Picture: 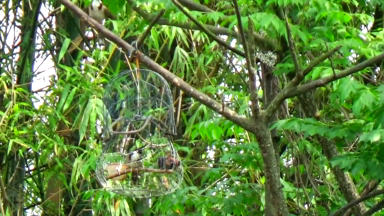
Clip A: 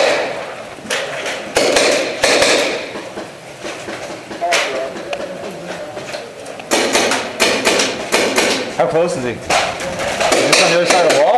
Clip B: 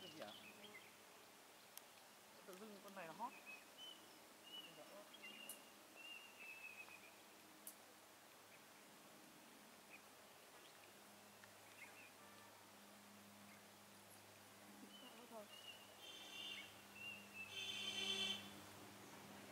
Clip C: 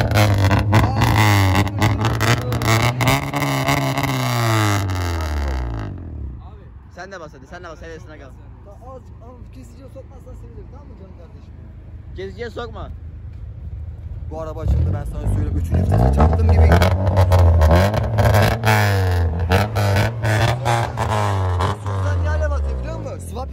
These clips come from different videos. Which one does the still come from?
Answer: B